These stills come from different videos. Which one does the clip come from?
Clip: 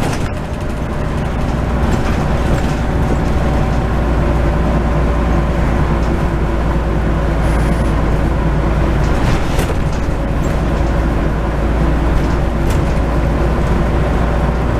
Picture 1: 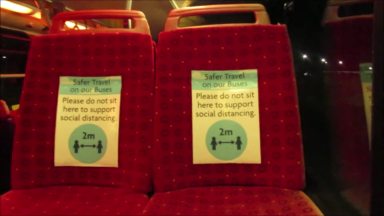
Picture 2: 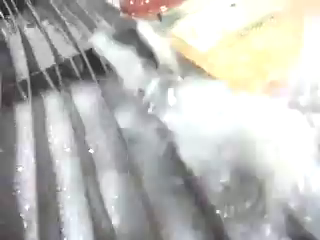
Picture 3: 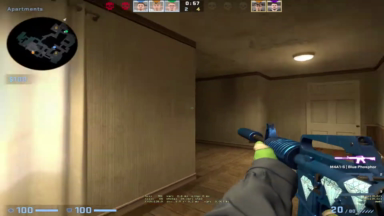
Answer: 1